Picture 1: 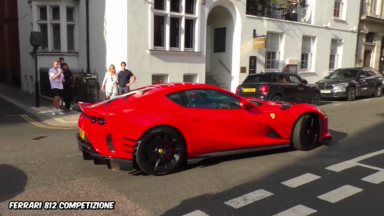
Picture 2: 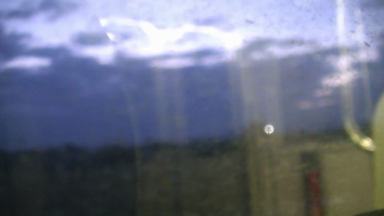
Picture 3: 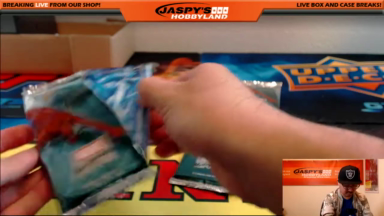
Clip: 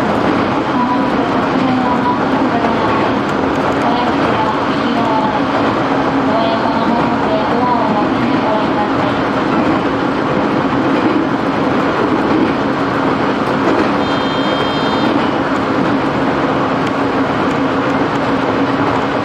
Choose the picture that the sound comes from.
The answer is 2